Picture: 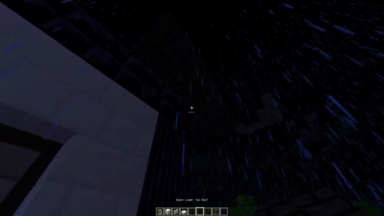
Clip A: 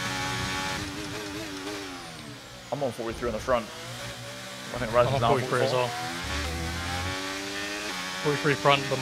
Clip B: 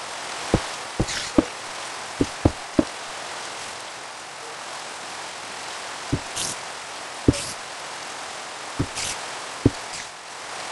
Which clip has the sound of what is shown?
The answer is B